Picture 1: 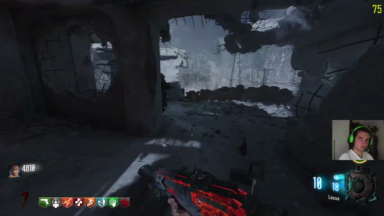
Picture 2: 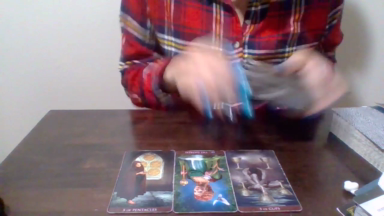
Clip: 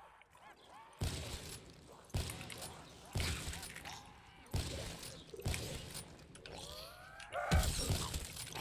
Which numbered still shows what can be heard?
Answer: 1